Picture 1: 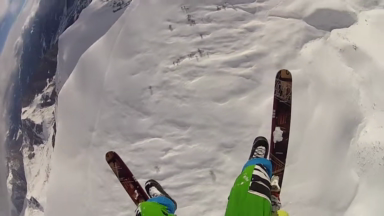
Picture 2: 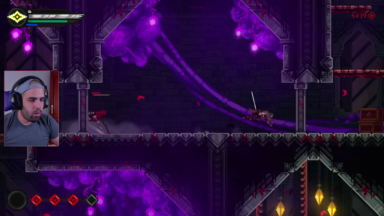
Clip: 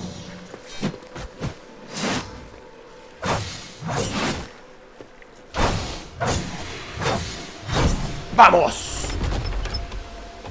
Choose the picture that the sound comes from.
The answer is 2